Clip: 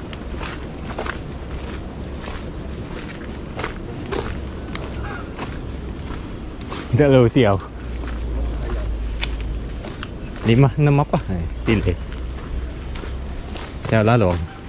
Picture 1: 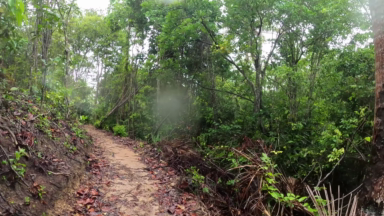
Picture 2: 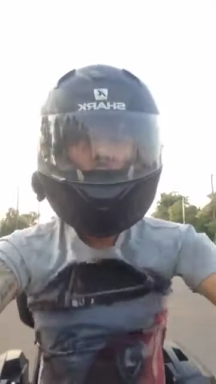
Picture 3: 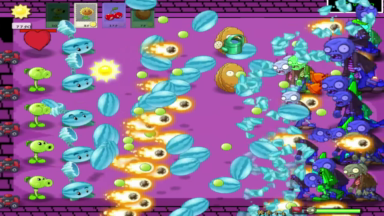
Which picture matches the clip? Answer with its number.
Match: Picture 1